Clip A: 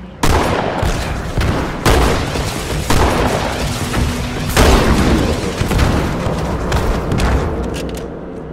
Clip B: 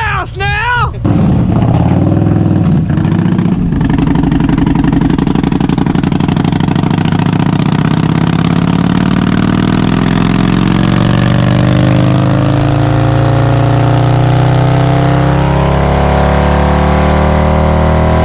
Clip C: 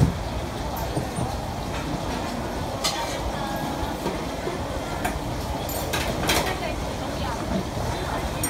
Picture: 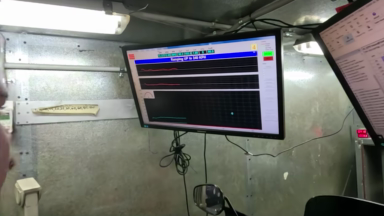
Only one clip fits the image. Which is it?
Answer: B